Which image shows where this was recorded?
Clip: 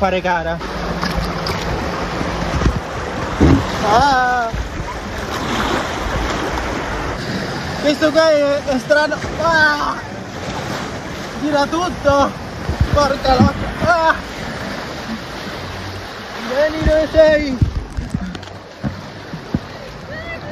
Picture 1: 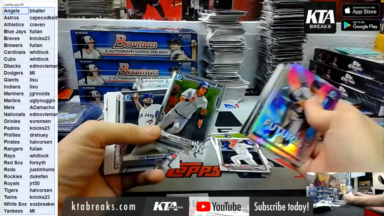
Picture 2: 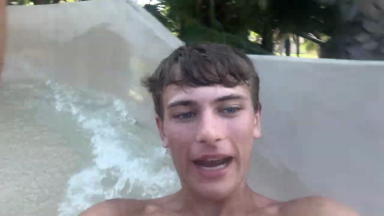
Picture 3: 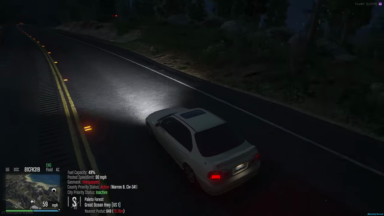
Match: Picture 2